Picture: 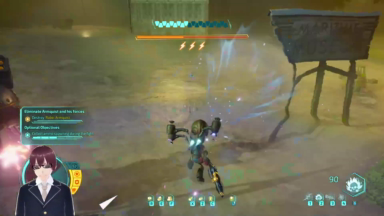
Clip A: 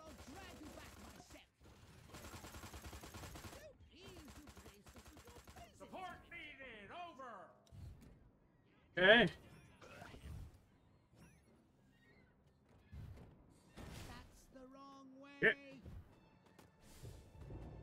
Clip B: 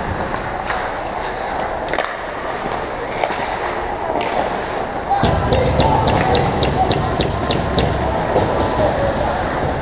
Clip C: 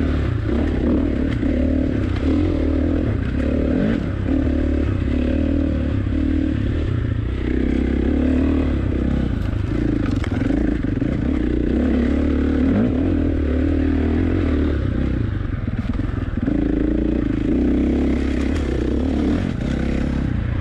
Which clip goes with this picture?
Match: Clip A